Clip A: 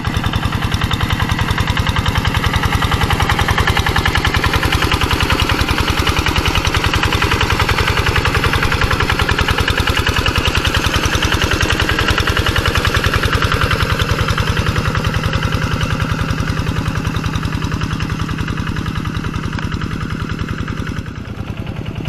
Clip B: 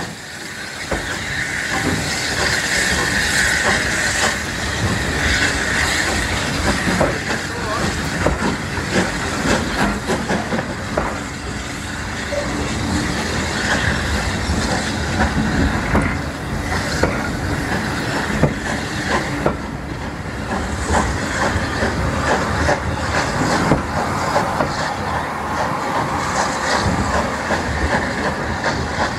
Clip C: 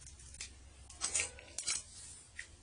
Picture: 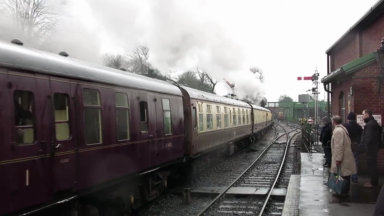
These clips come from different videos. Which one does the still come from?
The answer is B